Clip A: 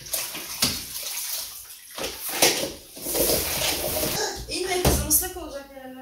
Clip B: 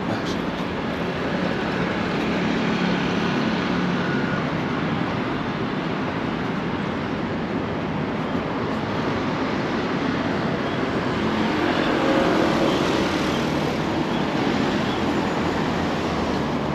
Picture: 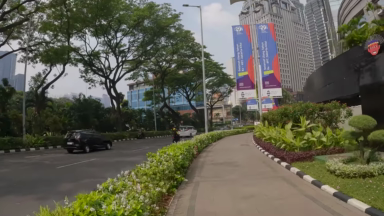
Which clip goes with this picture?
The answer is B